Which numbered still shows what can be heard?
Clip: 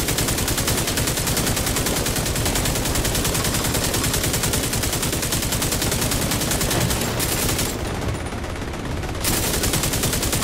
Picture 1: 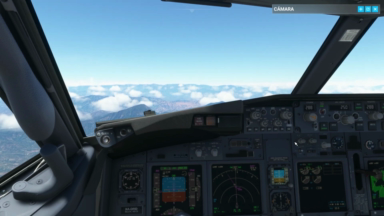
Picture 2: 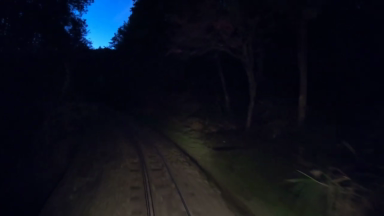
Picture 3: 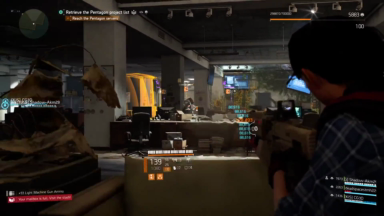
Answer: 3